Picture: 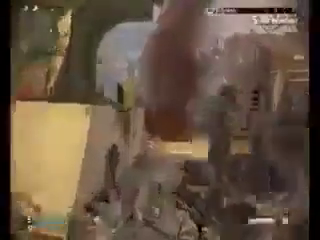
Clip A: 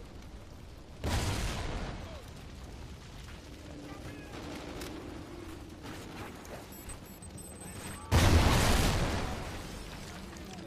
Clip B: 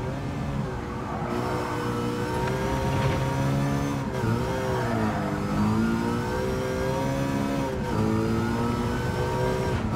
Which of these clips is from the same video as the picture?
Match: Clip A